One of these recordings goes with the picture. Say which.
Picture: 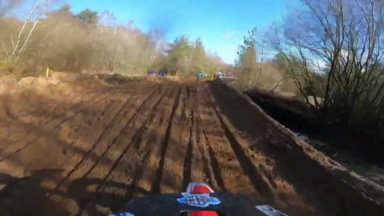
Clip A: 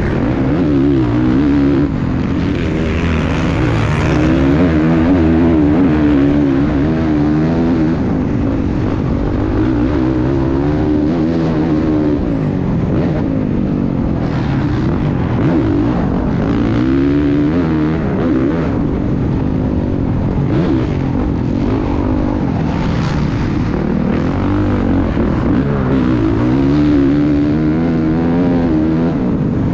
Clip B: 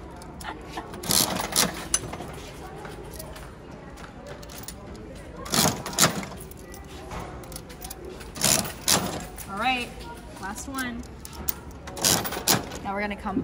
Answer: A